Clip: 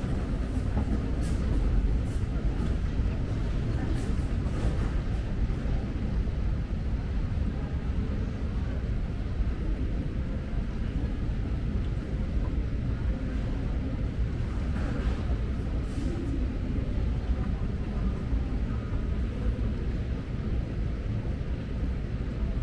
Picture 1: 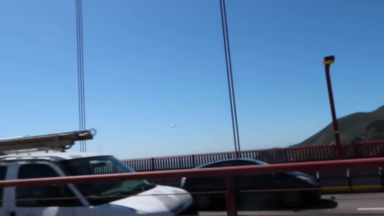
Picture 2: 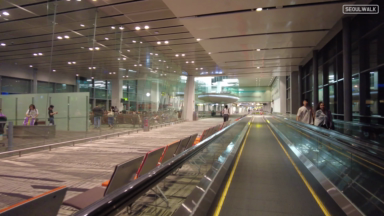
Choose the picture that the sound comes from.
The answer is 2